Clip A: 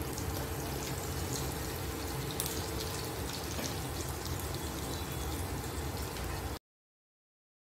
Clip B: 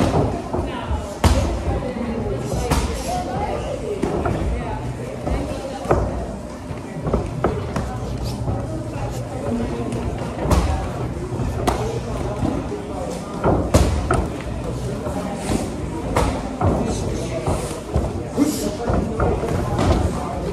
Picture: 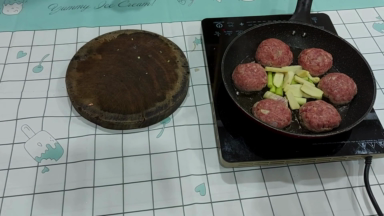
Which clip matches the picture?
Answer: A